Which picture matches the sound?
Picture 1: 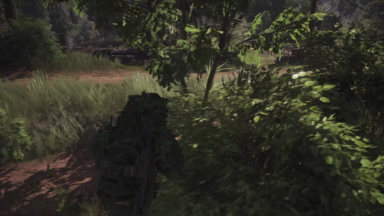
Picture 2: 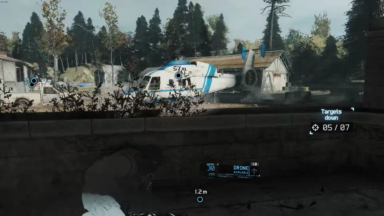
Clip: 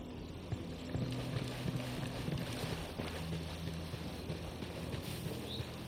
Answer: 1